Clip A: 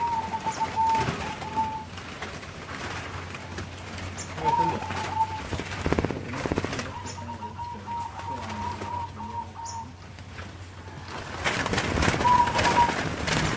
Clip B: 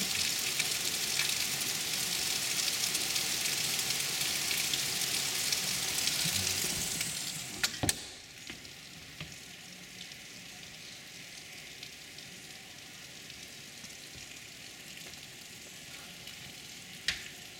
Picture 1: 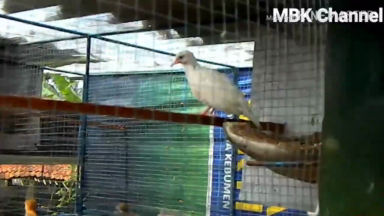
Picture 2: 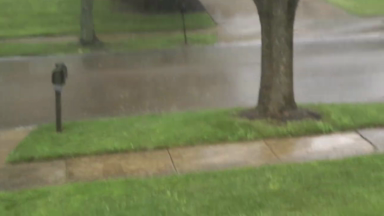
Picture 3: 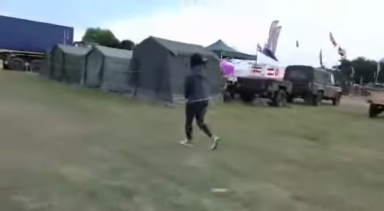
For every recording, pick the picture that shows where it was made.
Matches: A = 1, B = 2